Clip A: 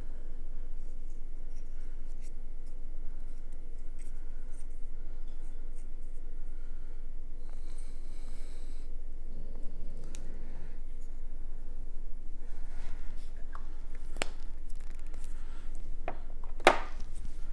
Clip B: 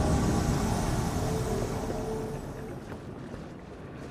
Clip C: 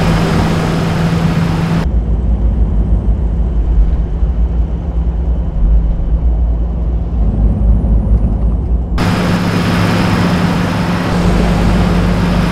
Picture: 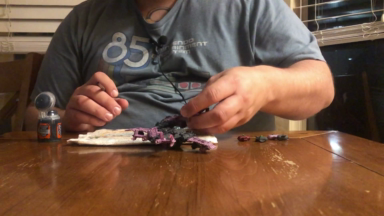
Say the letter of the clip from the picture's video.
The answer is A